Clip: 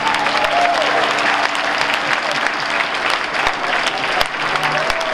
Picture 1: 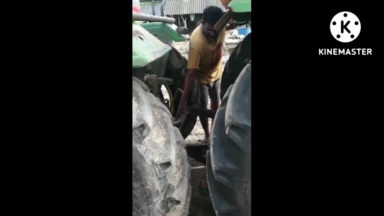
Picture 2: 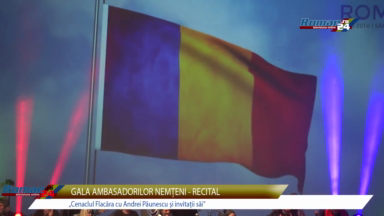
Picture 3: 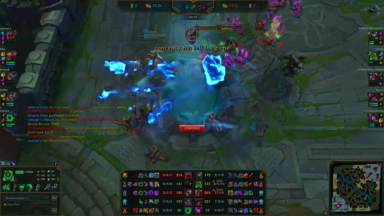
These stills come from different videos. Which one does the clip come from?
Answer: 2